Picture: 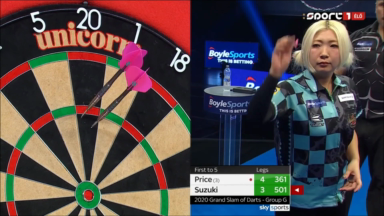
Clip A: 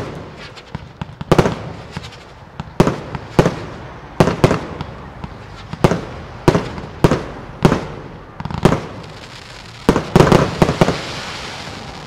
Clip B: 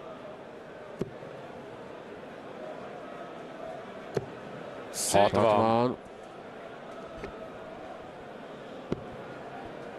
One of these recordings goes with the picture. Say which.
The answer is B